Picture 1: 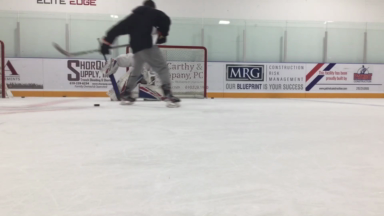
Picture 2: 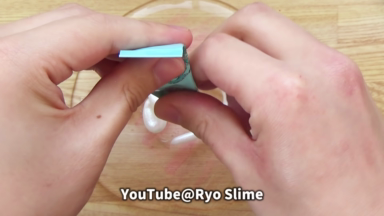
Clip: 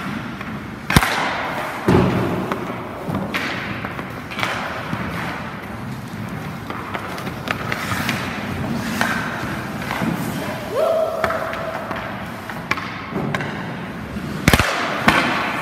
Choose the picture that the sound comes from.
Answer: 1